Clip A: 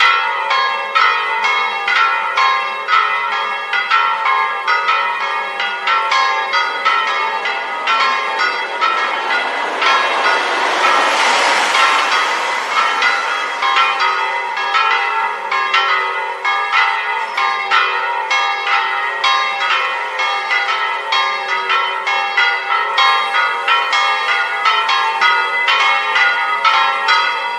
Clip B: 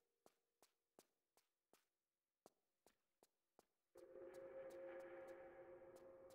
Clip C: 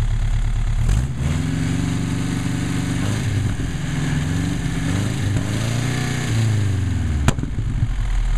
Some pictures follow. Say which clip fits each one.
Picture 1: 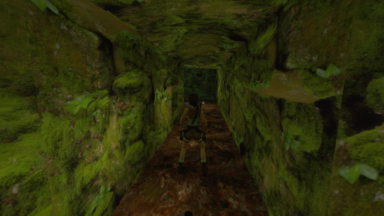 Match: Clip B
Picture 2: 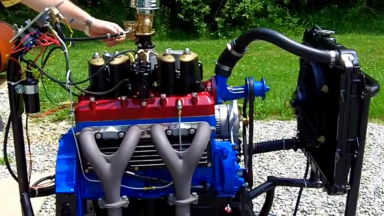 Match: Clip C